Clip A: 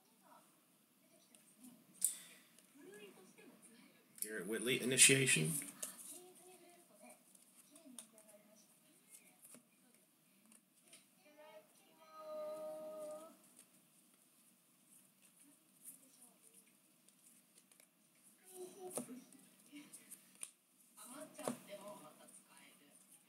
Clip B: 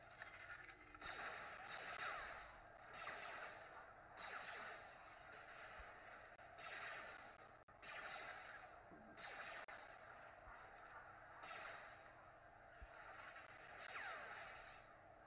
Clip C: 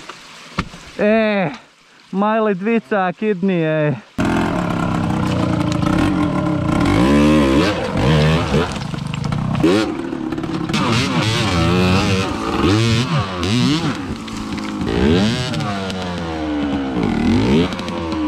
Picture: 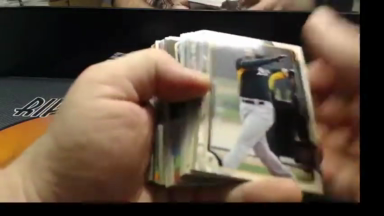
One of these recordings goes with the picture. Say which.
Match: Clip A